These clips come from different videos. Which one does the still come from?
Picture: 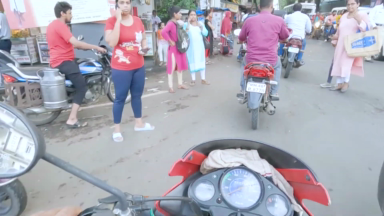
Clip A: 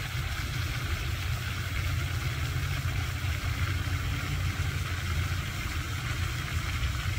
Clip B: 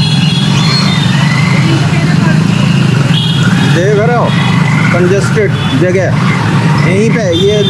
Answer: B